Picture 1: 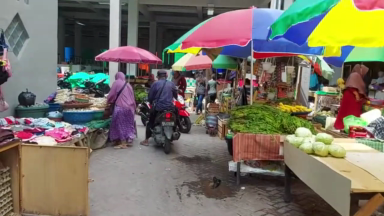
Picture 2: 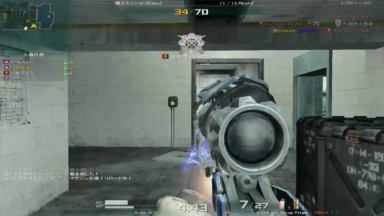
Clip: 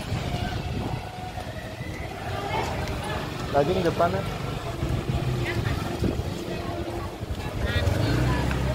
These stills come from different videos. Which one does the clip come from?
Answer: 1